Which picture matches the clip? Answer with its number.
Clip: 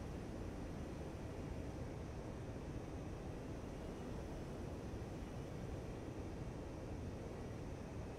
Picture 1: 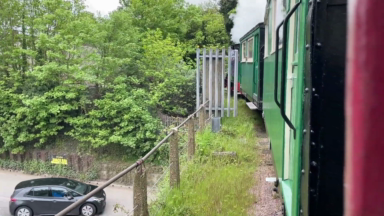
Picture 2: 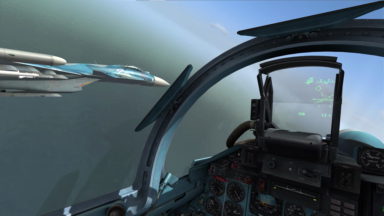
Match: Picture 2